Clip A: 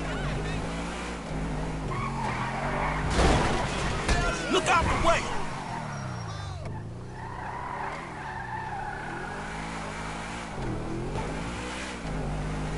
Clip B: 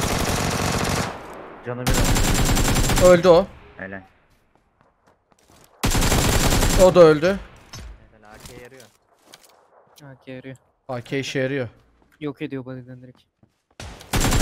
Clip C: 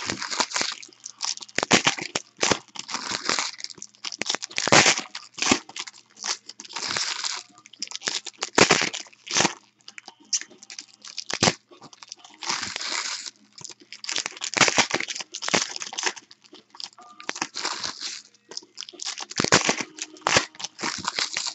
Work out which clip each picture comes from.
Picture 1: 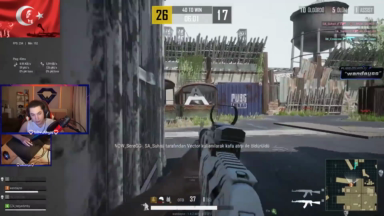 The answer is B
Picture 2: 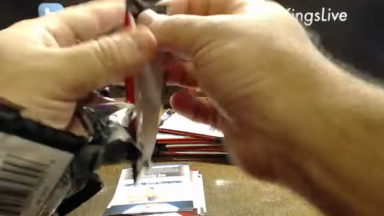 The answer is C